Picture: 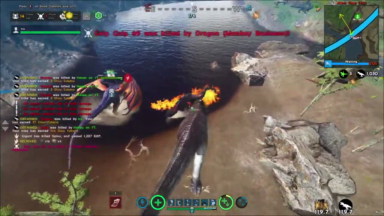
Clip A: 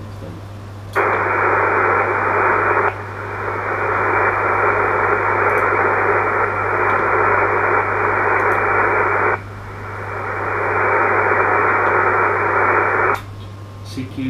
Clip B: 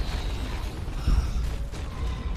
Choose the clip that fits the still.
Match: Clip B